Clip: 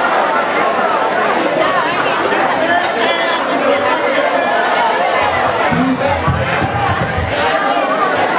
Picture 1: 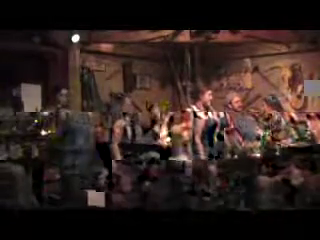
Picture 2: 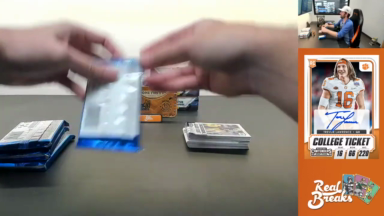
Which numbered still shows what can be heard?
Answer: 1